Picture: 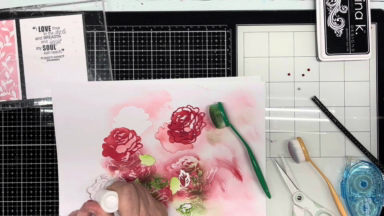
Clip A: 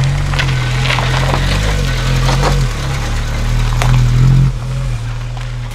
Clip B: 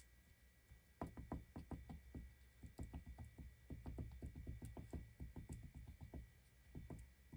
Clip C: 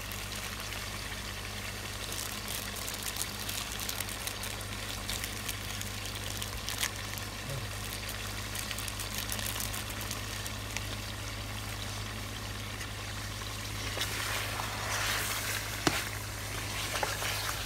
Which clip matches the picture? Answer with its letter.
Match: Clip B